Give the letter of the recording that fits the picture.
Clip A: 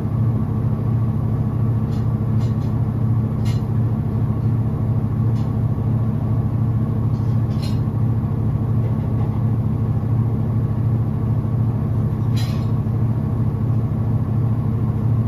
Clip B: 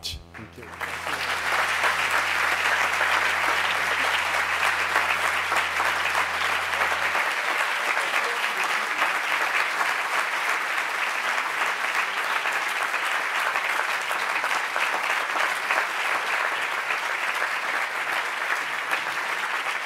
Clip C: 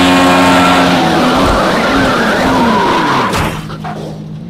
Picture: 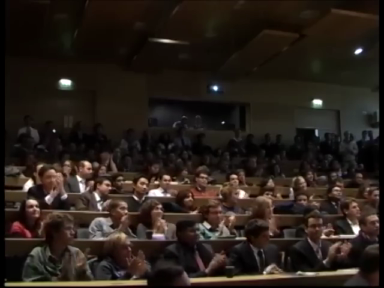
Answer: B